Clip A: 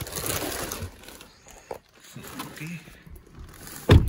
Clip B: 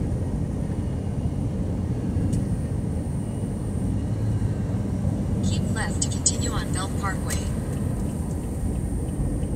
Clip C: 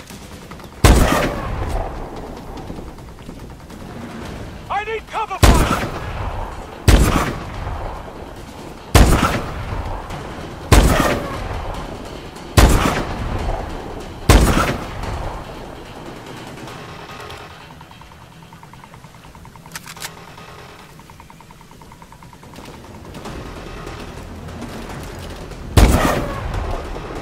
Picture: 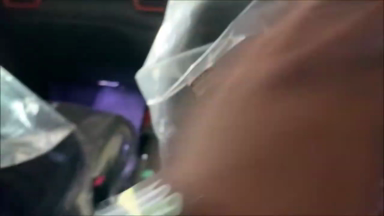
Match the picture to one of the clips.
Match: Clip A